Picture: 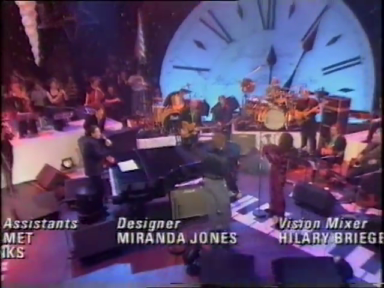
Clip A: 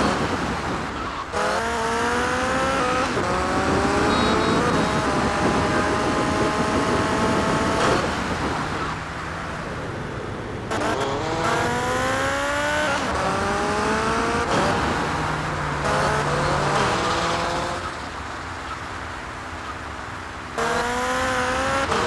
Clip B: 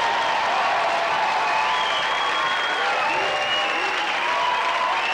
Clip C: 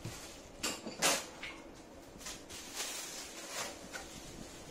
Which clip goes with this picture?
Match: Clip B